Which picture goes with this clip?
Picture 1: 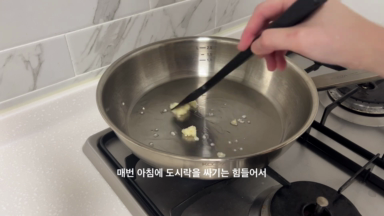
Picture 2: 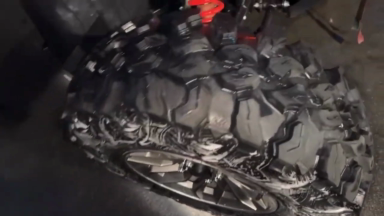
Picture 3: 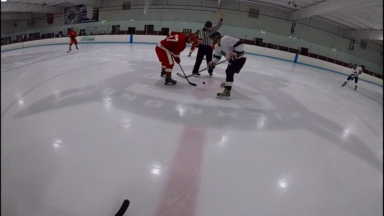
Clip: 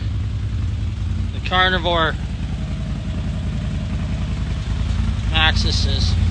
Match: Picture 2